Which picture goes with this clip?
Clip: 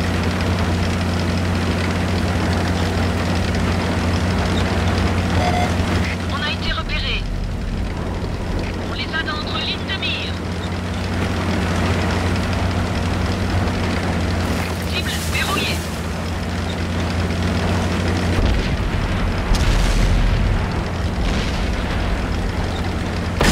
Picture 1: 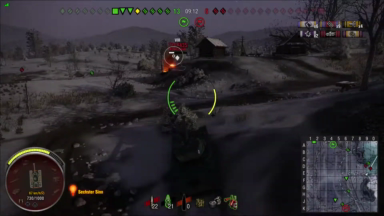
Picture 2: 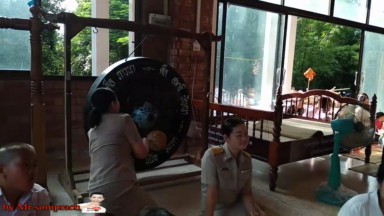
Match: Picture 1